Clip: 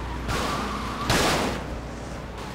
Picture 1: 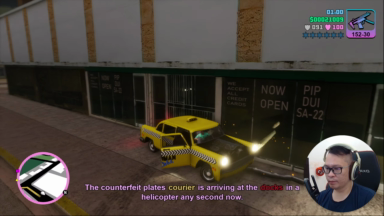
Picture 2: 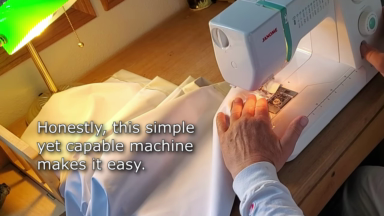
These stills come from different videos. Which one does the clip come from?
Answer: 1